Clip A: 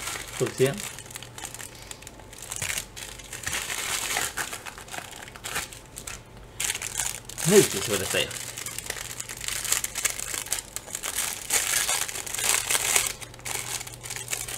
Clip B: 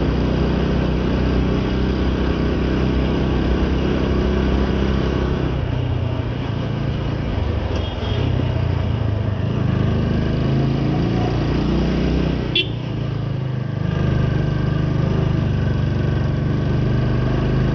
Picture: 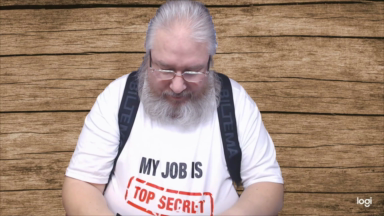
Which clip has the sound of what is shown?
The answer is A